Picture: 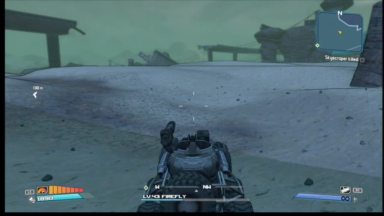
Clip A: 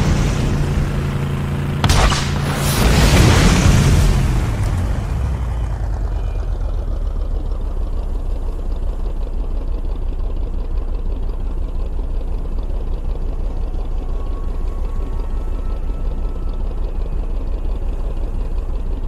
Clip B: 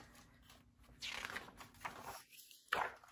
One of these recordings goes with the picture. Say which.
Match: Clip A